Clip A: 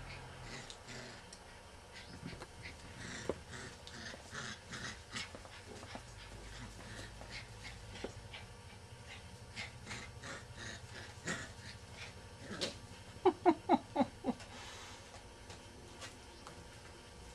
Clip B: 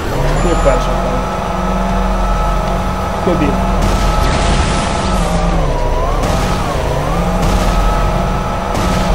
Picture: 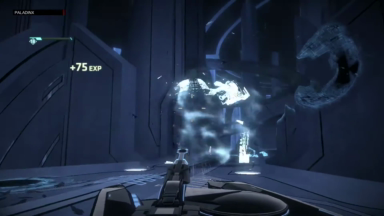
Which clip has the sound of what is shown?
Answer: B